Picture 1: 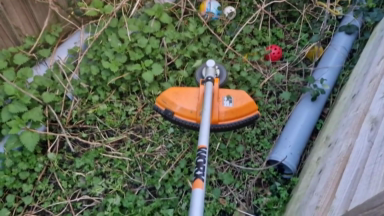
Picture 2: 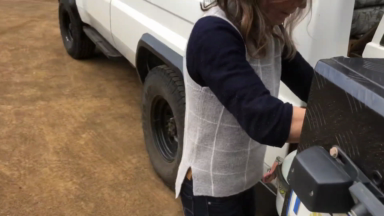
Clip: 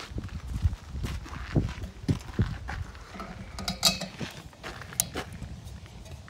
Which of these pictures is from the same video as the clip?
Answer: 2